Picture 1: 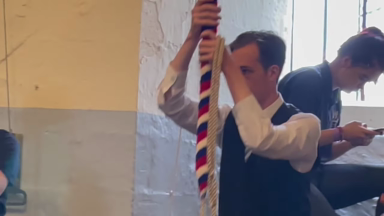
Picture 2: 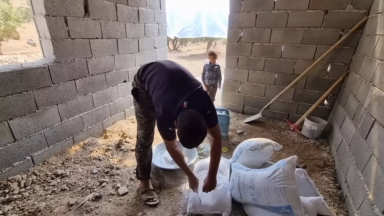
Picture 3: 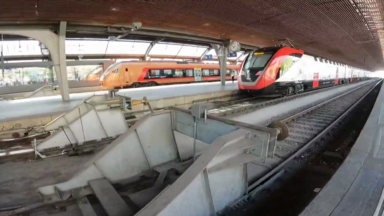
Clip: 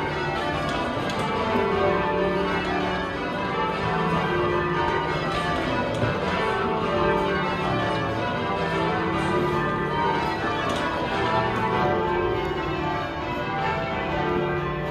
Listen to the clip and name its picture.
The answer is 1